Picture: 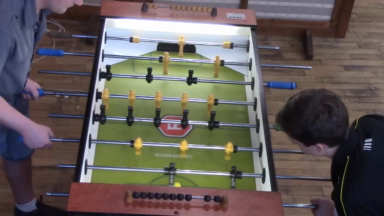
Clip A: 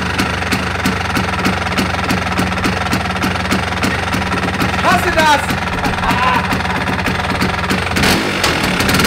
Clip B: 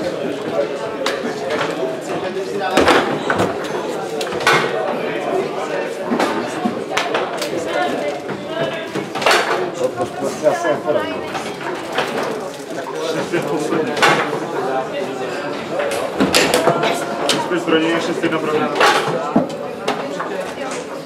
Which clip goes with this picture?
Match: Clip B